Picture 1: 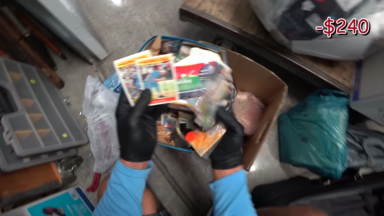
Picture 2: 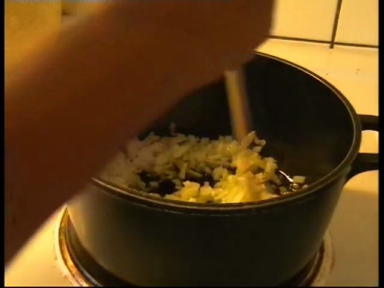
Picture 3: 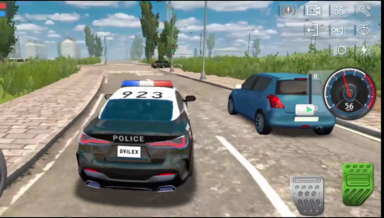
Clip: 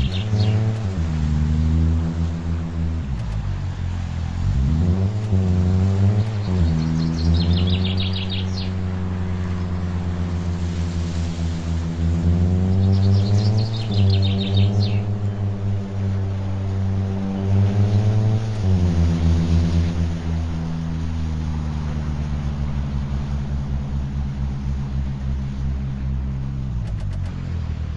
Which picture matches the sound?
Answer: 3